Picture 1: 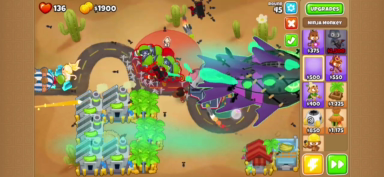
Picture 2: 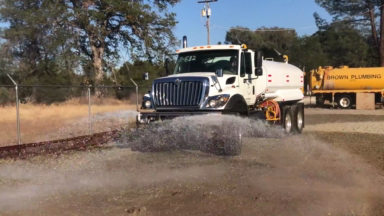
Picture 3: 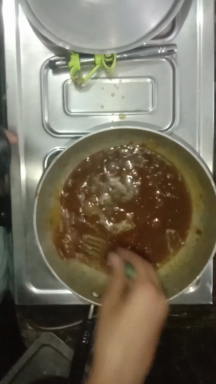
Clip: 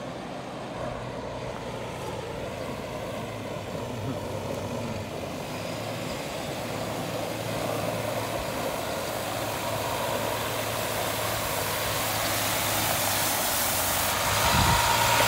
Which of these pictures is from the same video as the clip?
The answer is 2